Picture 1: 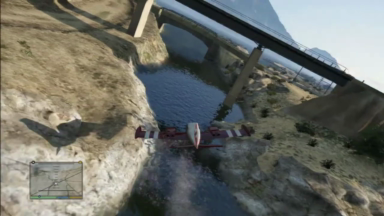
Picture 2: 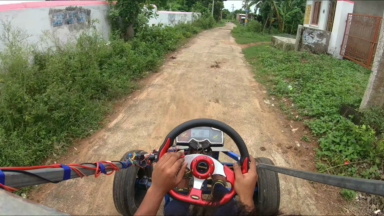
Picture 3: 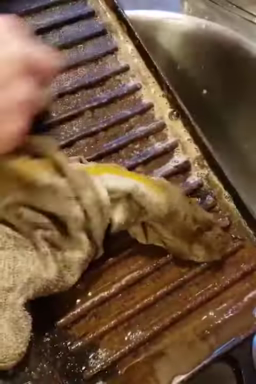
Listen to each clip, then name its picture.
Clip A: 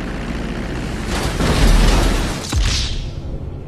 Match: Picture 1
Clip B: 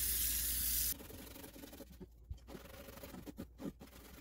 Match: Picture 3